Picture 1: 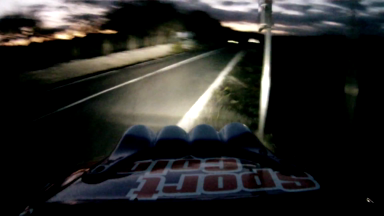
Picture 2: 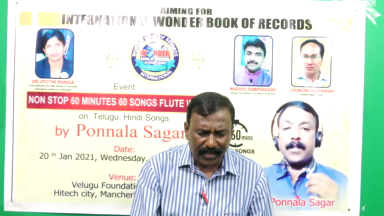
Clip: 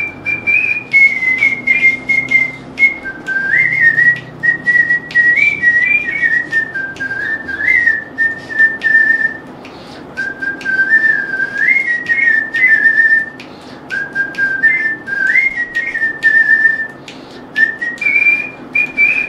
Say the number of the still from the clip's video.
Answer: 2